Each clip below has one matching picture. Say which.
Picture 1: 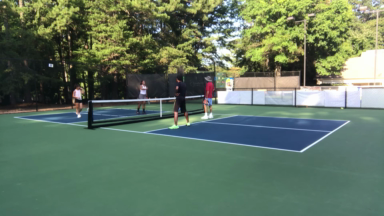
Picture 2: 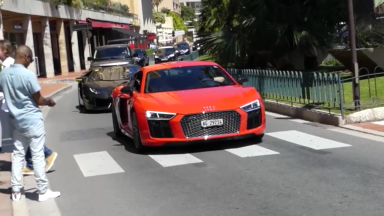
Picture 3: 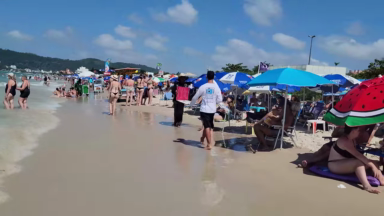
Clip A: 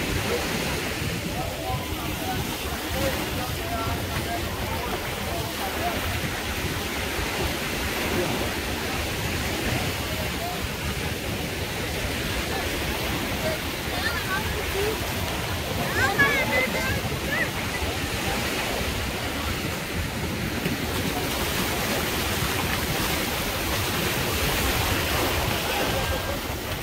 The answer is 3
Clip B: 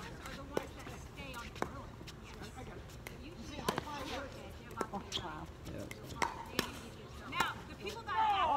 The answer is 1